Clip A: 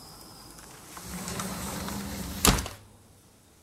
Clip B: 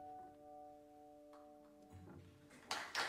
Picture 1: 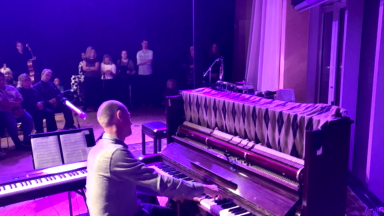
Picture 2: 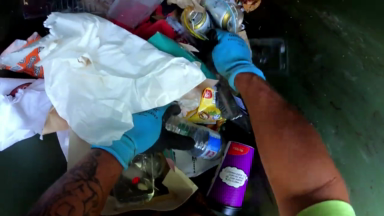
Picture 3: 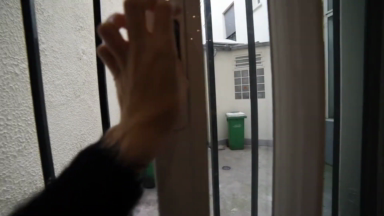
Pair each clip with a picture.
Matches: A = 3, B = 1